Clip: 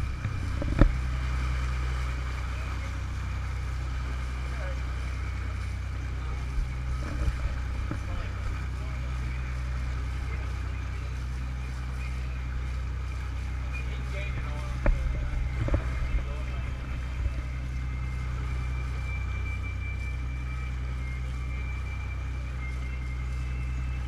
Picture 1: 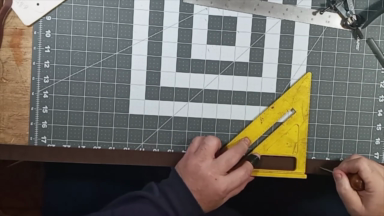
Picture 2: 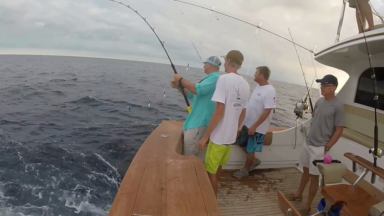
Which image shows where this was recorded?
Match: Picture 2